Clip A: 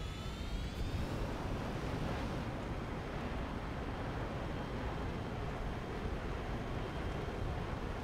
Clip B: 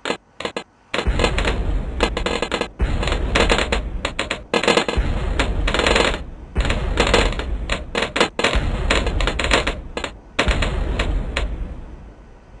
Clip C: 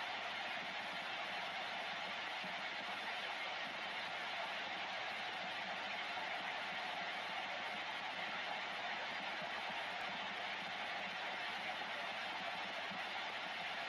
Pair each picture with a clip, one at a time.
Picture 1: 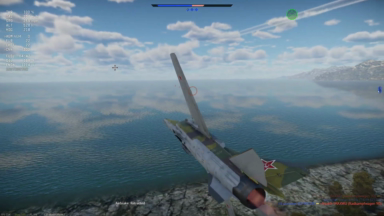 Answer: A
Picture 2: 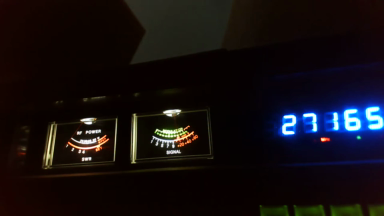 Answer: C